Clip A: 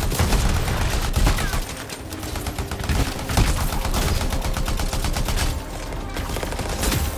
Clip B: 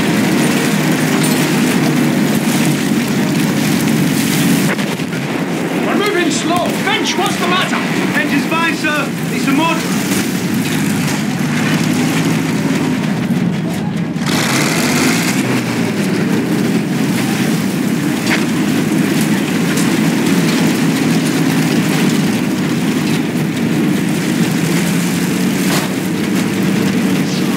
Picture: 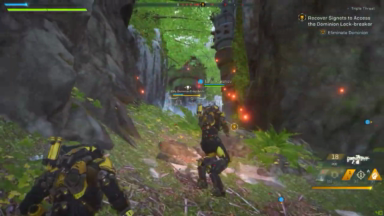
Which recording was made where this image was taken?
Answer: A